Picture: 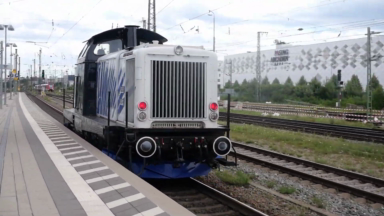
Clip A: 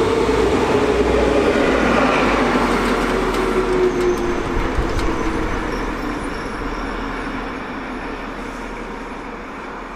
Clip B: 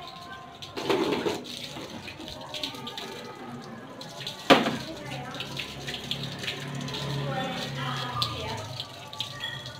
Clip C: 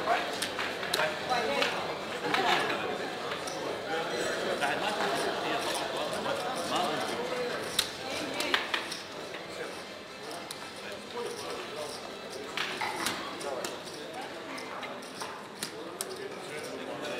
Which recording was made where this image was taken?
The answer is A